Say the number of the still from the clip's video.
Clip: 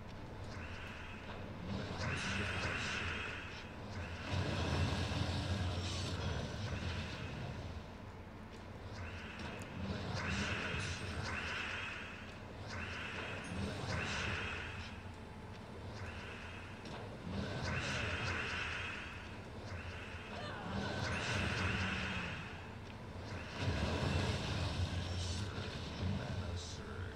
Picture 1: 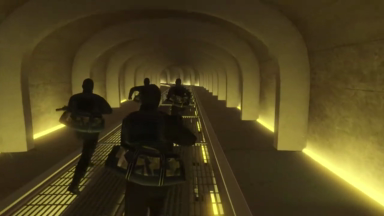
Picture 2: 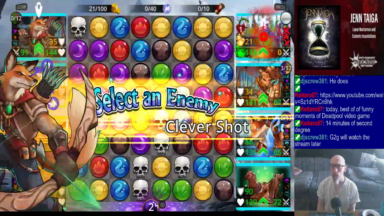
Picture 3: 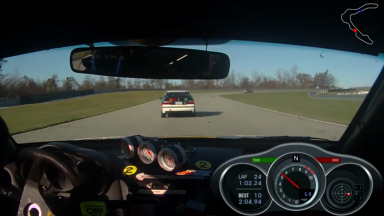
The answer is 2